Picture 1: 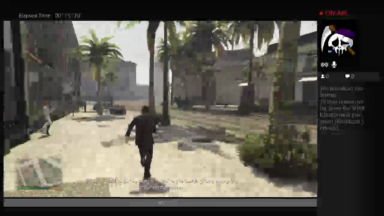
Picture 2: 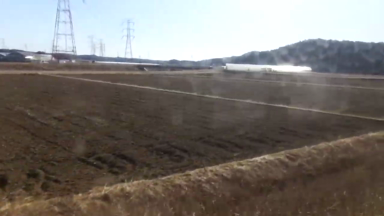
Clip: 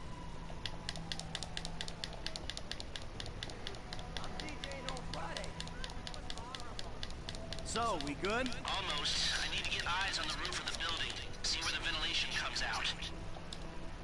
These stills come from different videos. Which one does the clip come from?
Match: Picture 1